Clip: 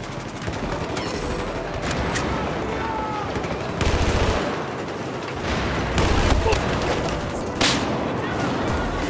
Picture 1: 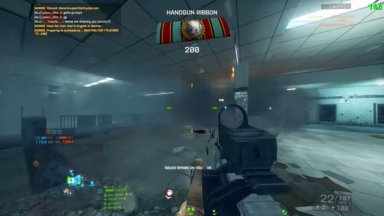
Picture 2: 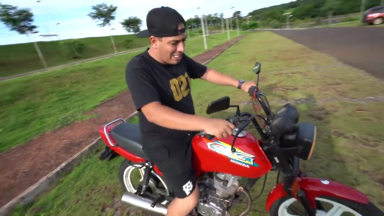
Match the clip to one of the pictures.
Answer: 1